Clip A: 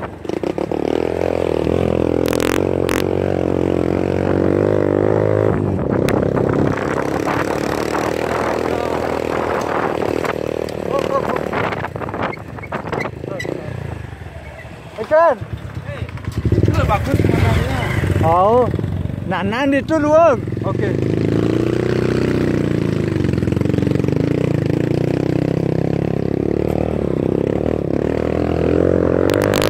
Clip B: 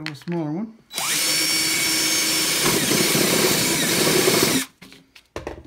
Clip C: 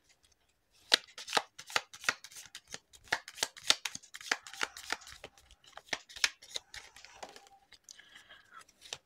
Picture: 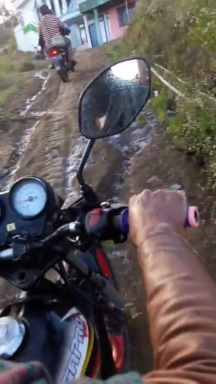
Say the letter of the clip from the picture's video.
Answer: A